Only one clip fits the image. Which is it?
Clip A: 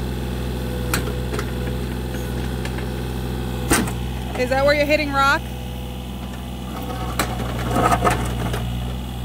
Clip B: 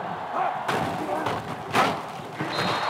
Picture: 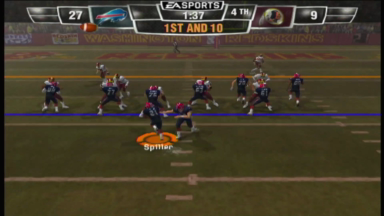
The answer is B